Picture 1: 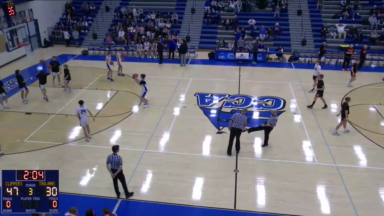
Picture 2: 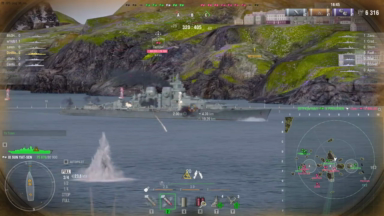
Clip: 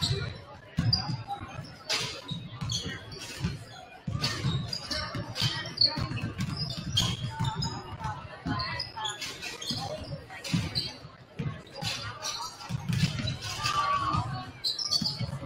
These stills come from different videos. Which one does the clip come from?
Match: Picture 1